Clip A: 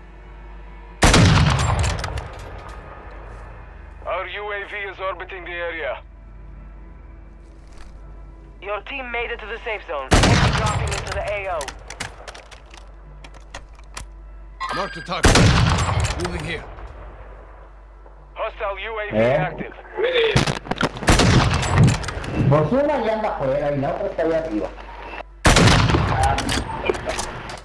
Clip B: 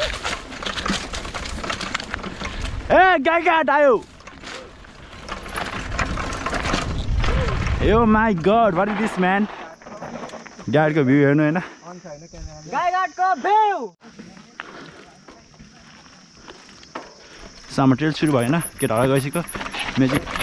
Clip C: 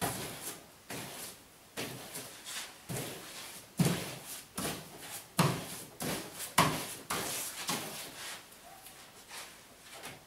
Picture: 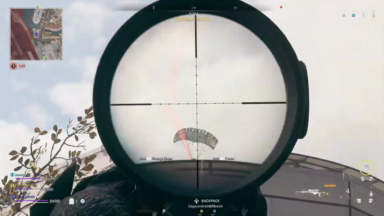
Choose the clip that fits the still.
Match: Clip A